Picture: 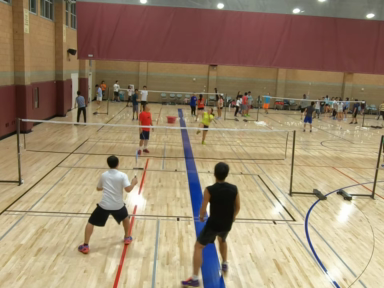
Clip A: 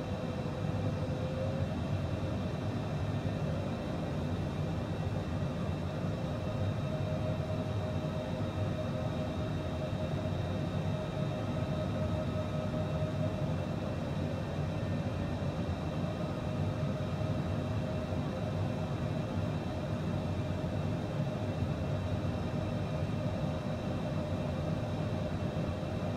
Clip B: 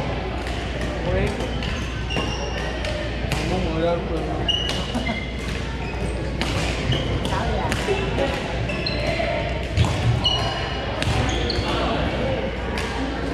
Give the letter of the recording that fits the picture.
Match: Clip B